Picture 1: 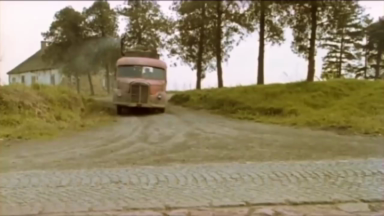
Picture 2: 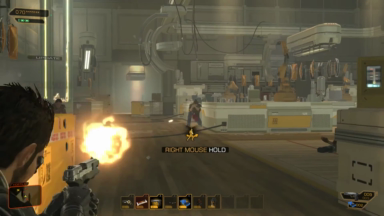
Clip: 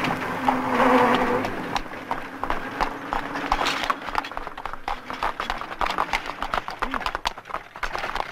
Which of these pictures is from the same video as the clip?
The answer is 1